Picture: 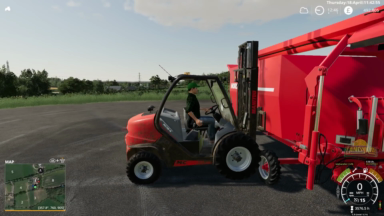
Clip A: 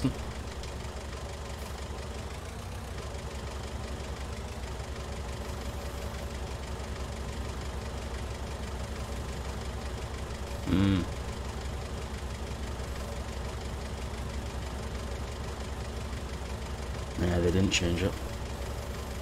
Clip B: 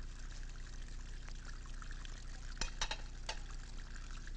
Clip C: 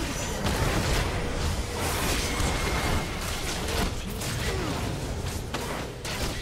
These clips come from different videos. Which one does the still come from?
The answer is A